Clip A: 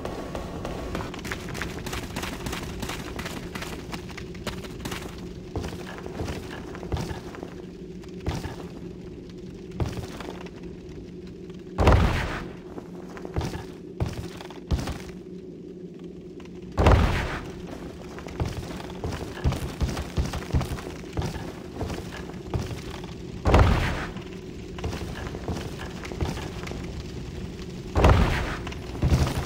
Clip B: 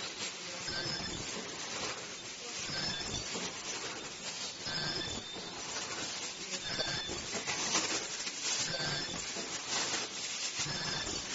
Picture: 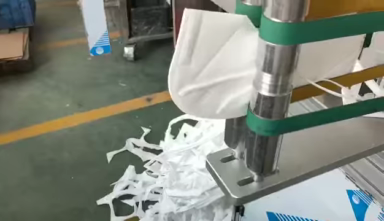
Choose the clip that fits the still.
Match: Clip B